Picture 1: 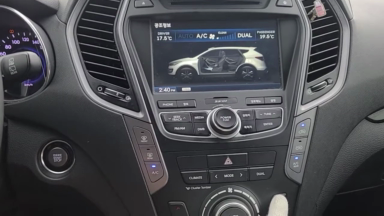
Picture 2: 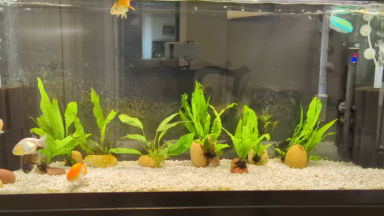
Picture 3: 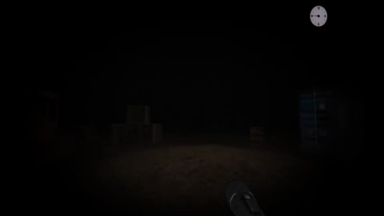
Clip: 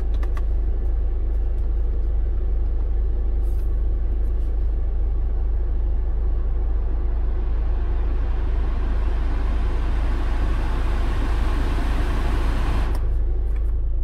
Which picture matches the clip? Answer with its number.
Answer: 1